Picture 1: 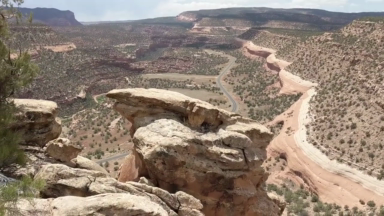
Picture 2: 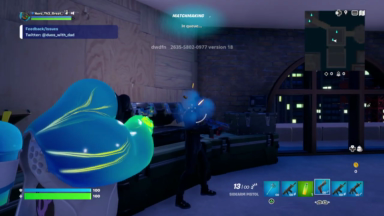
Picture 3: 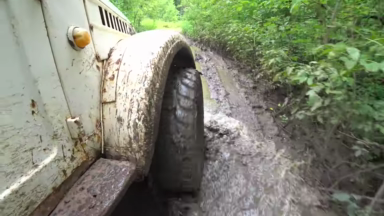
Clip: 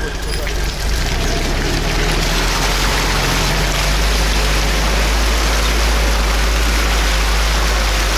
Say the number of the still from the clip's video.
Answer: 3